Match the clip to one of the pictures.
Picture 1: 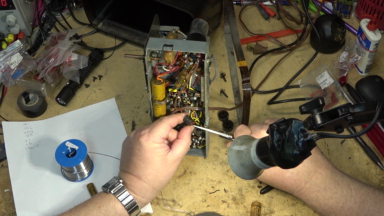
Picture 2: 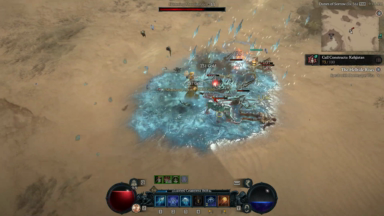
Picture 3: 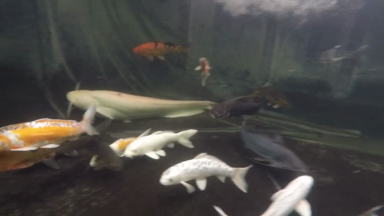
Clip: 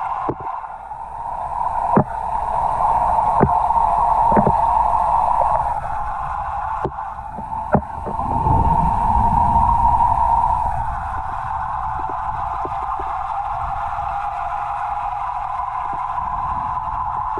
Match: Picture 3